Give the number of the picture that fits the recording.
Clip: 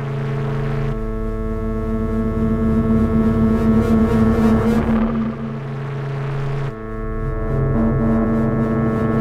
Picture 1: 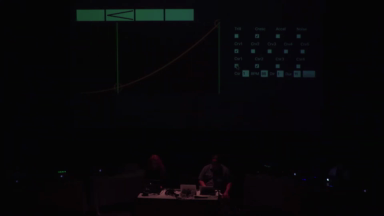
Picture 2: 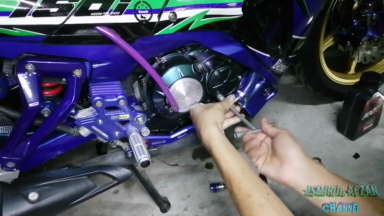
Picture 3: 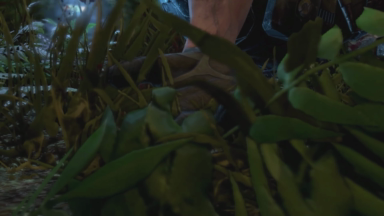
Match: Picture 1